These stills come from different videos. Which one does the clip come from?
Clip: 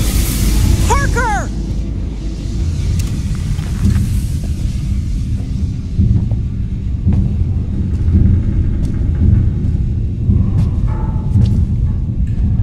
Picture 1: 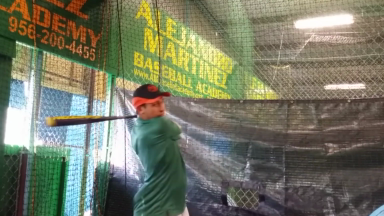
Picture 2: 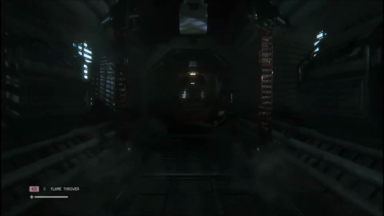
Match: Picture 2